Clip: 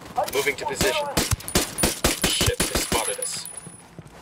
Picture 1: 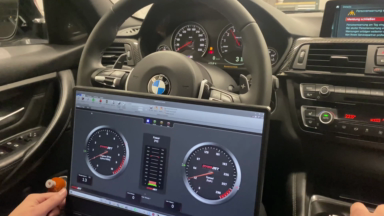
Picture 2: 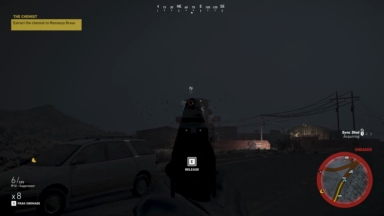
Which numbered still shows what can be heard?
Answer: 2